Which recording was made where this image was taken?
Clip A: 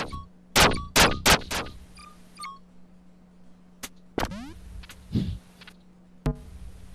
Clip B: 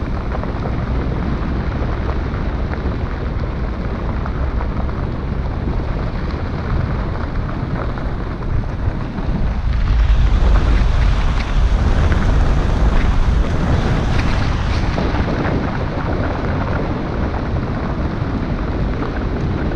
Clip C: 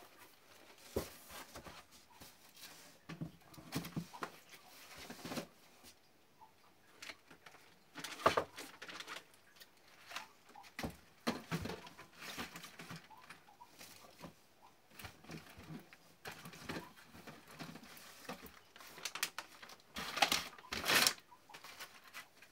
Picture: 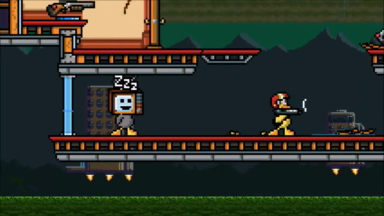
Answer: A